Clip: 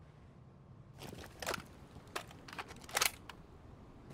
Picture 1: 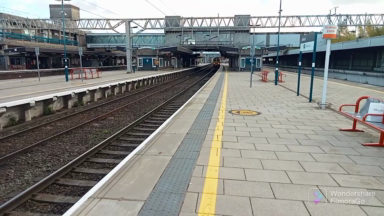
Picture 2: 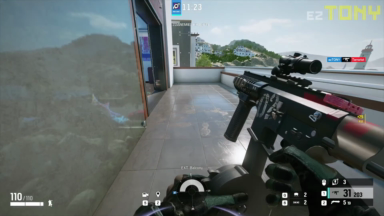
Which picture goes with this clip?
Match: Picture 2